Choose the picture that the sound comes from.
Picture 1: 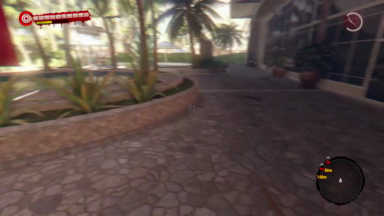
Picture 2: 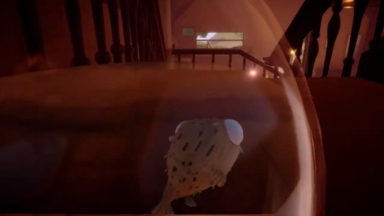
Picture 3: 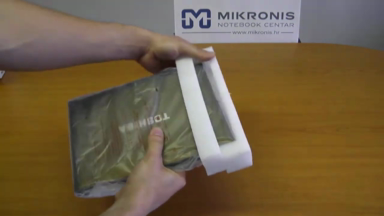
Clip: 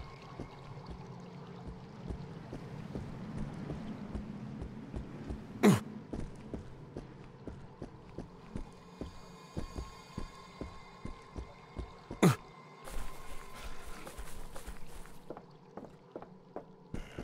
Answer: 1